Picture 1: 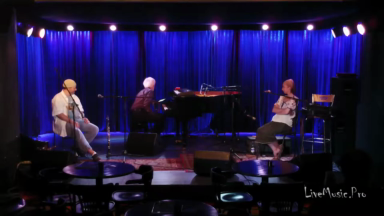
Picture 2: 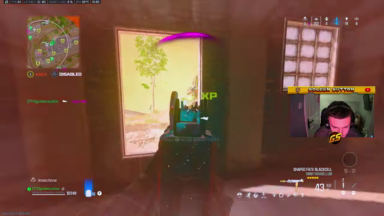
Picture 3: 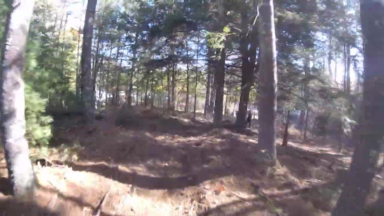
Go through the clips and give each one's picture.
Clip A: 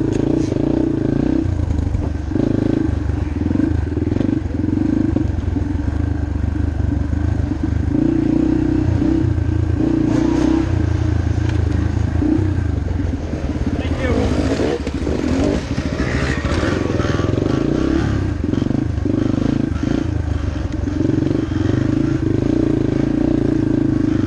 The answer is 3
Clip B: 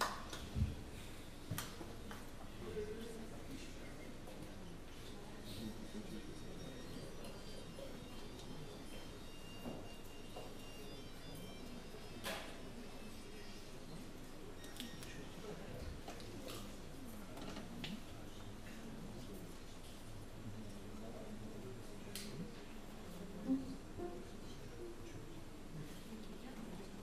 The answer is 1